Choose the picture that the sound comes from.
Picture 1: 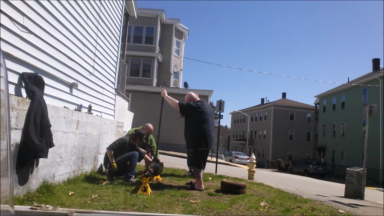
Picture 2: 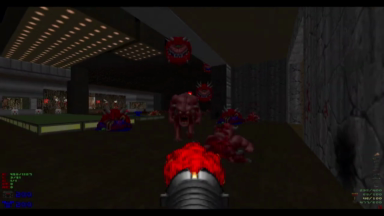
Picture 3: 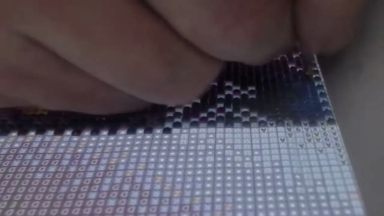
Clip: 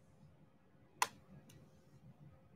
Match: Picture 3